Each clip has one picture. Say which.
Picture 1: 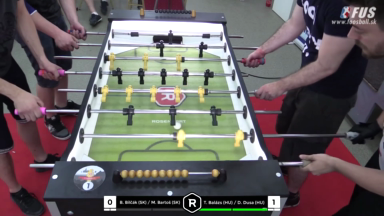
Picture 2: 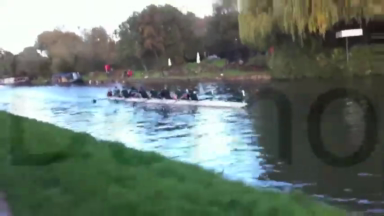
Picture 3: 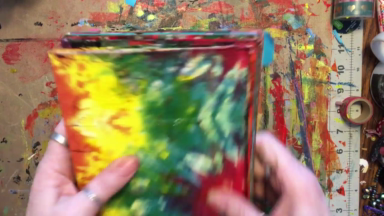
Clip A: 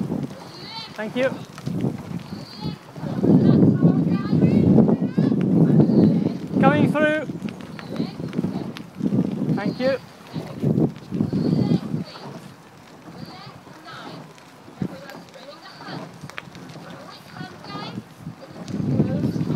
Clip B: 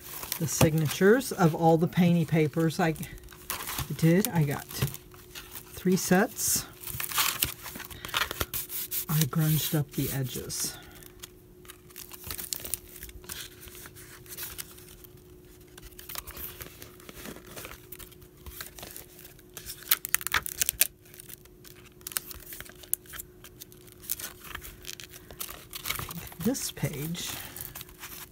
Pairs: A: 2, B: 3